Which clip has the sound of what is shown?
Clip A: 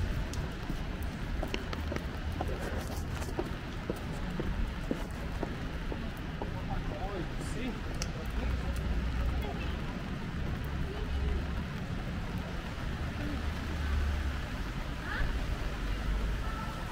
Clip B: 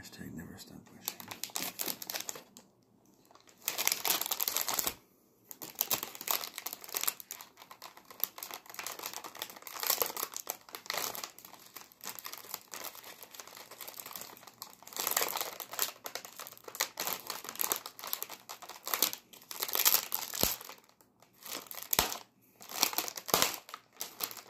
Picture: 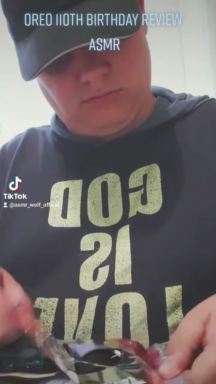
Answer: B